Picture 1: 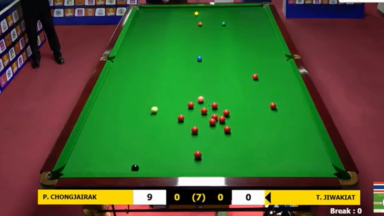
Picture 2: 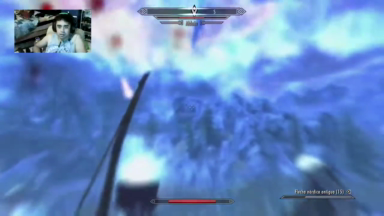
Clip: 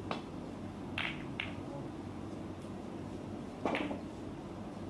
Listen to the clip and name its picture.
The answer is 1